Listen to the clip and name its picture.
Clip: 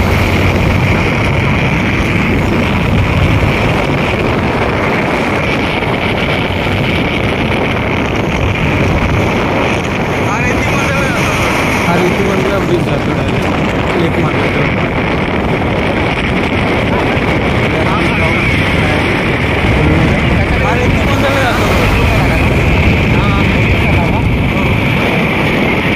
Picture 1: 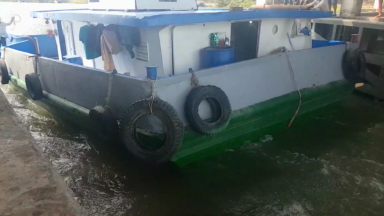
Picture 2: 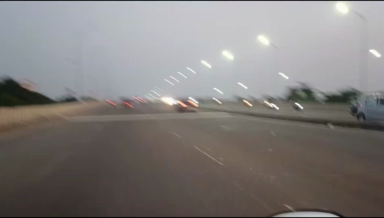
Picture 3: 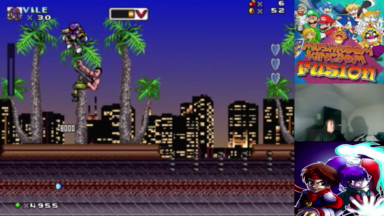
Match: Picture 2